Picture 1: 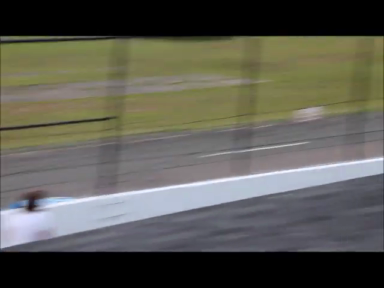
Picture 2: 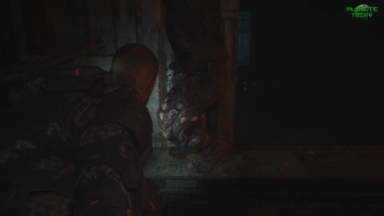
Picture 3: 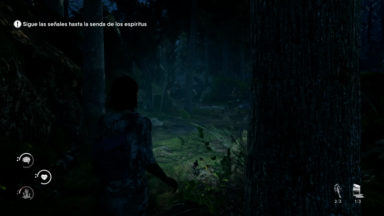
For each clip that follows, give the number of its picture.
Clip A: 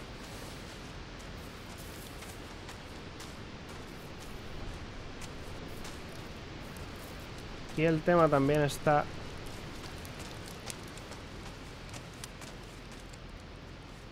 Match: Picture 3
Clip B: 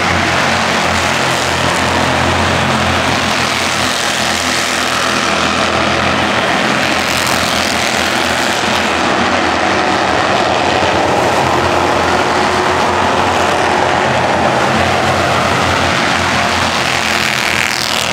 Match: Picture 1